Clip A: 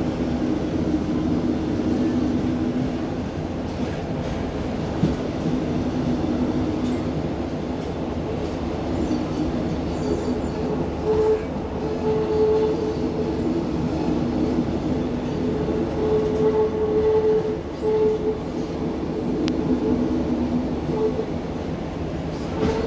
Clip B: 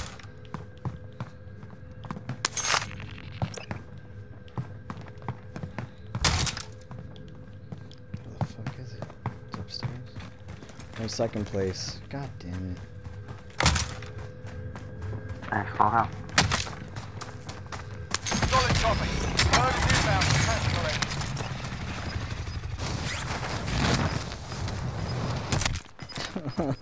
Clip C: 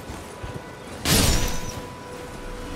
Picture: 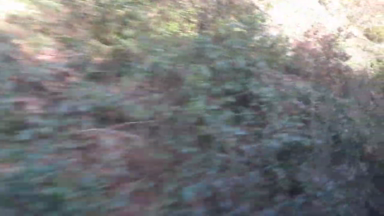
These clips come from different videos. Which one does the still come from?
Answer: A